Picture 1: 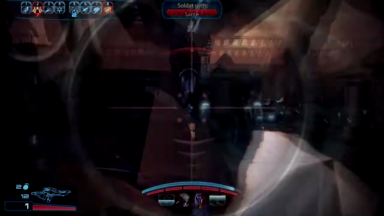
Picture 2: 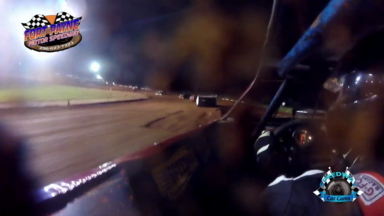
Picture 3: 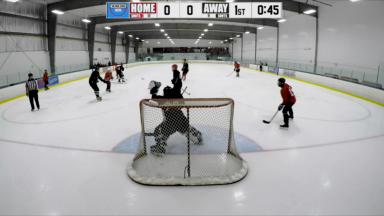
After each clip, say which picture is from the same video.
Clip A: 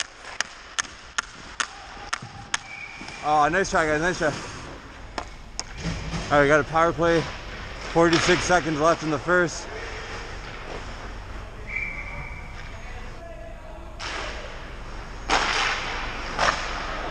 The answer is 3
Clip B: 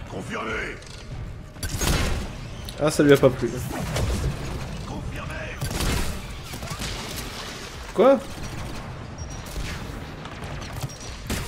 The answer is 1